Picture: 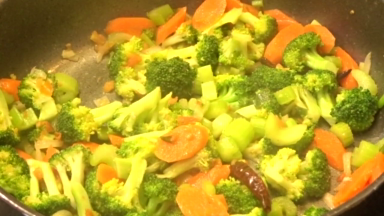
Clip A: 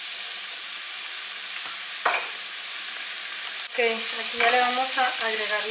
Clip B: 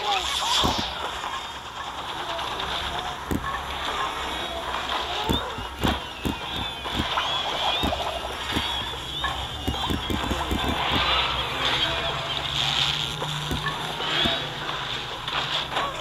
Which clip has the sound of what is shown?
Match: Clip A